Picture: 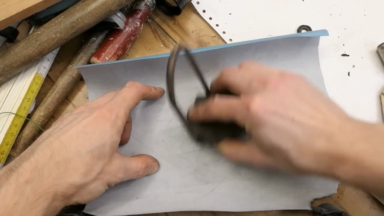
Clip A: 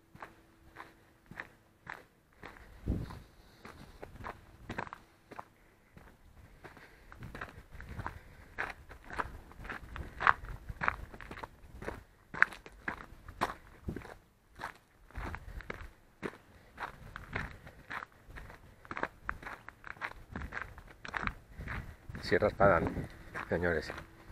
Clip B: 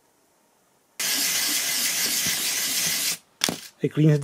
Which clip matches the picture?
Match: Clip B